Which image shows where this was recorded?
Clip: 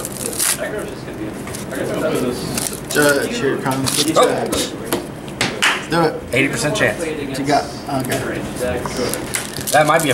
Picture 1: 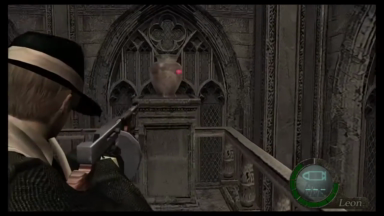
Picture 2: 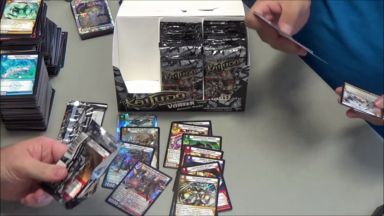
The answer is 2